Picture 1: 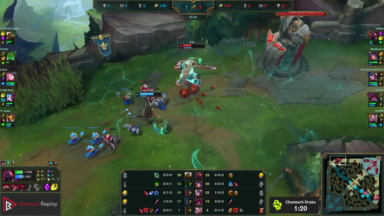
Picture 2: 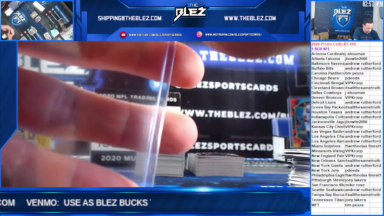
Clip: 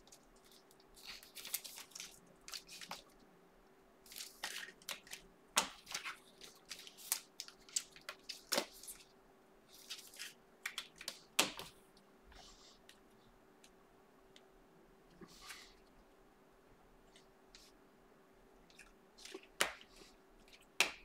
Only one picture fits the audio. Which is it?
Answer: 2